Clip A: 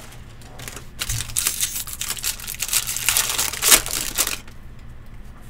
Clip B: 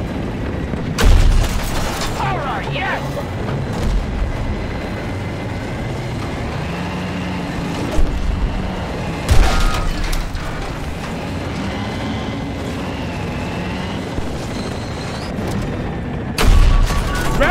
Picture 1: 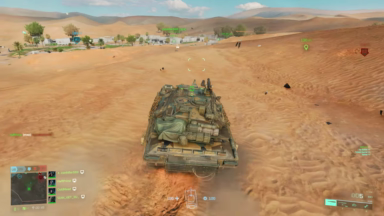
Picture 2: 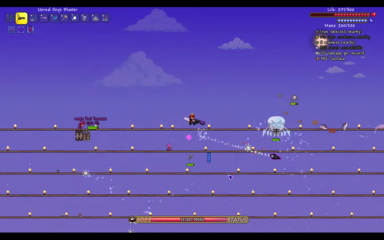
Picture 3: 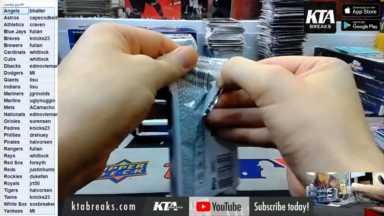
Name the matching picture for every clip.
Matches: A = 3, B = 1